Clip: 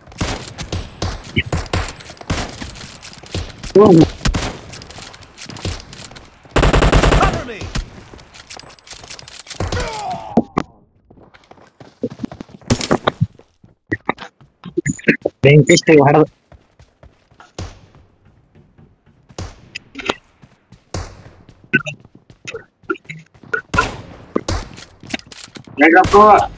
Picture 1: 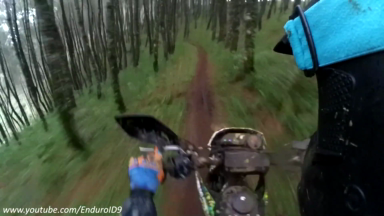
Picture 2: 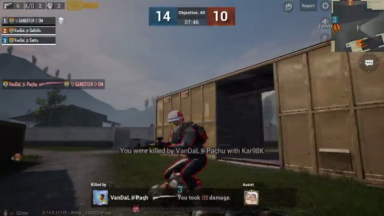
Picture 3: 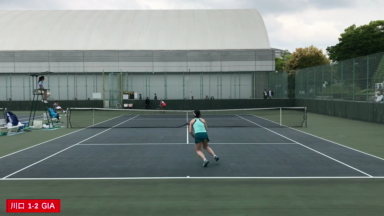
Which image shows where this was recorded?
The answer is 2